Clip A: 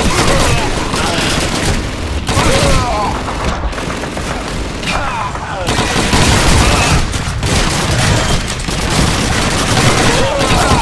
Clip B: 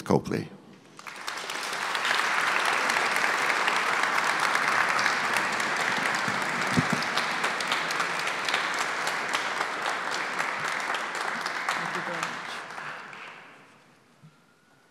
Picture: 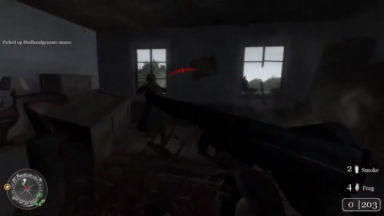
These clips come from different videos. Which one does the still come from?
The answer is A